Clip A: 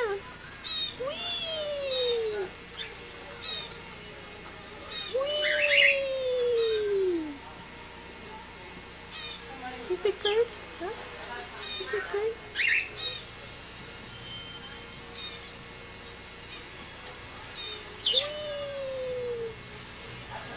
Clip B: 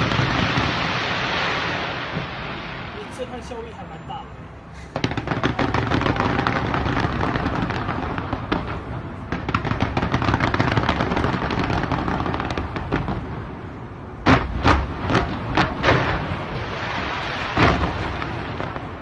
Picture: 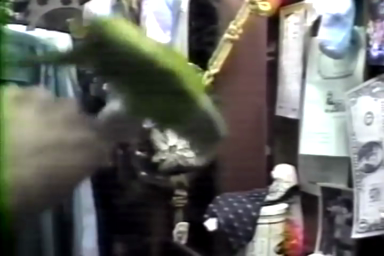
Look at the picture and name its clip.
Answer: A